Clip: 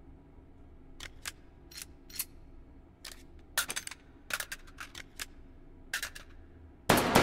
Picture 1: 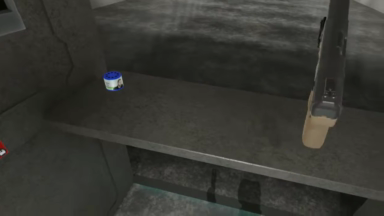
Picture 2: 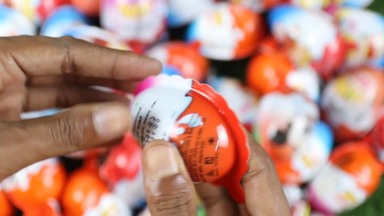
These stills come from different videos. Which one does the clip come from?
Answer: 1